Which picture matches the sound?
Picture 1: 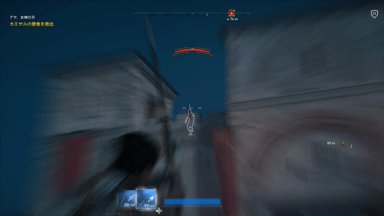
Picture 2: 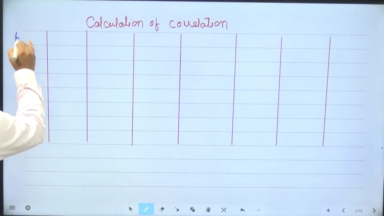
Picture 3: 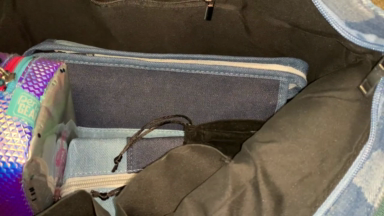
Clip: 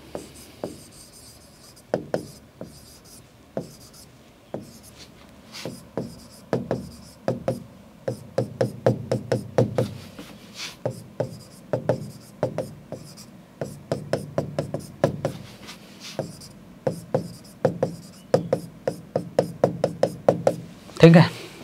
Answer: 2